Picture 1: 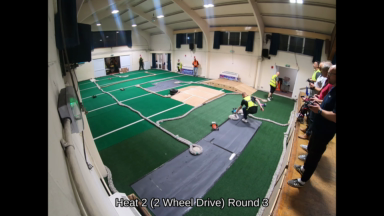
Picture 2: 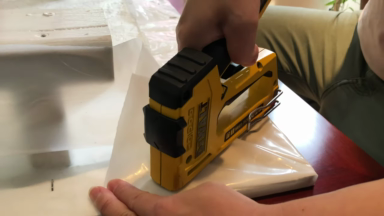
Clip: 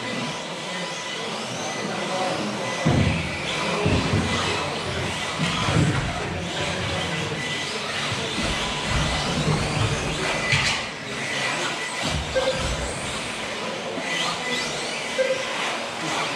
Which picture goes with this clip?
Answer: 1